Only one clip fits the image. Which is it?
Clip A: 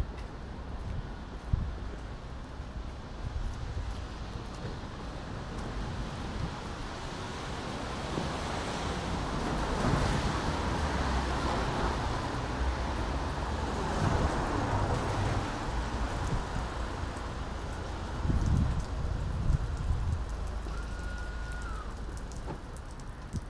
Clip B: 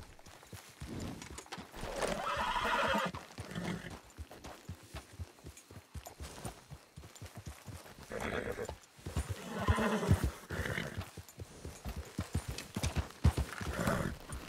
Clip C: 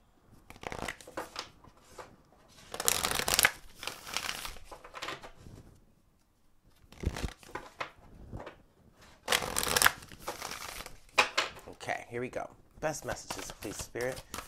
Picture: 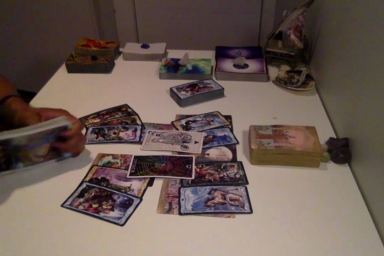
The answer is C